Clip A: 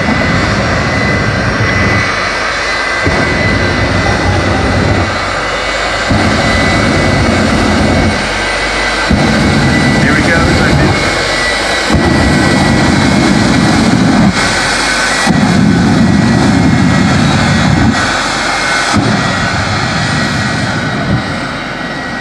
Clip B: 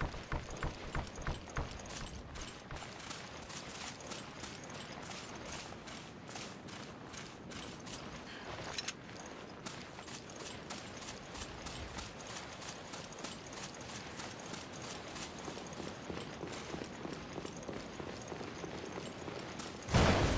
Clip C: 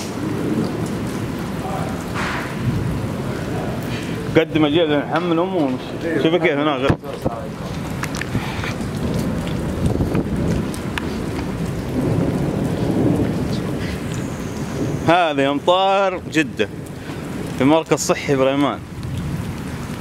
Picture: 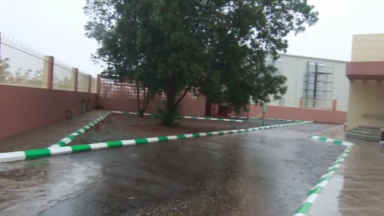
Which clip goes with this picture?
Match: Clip C